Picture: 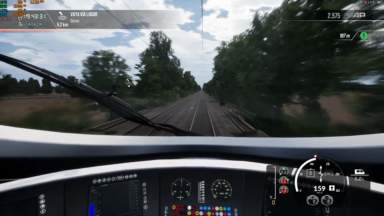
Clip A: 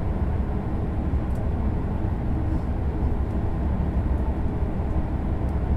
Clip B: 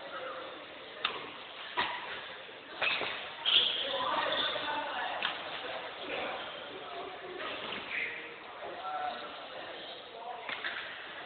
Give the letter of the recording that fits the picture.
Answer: A